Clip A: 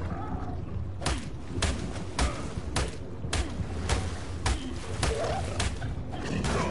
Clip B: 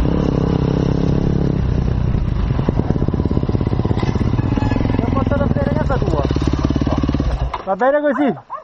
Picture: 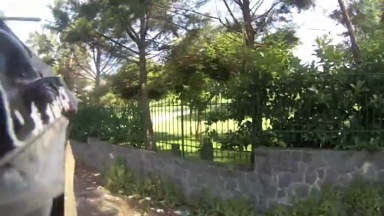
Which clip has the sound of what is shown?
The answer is B